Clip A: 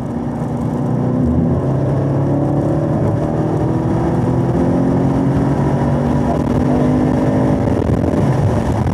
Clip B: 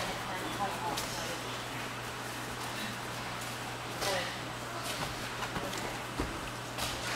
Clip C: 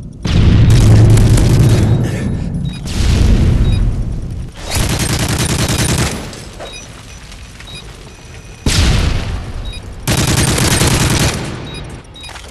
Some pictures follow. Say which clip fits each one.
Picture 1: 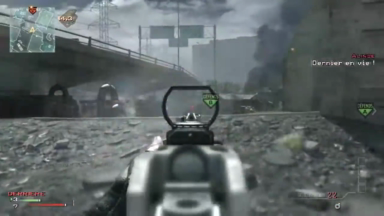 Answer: C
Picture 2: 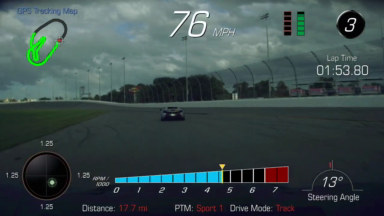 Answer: A